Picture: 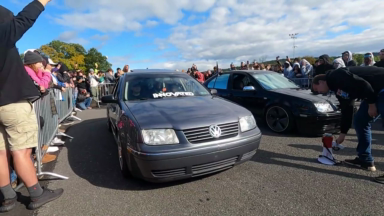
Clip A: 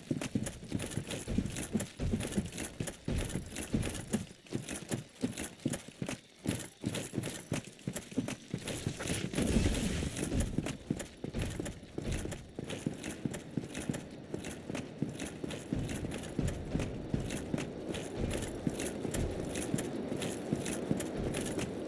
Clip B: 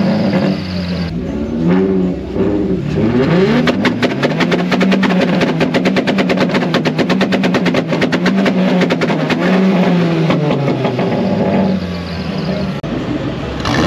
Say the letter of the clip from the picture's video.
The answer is B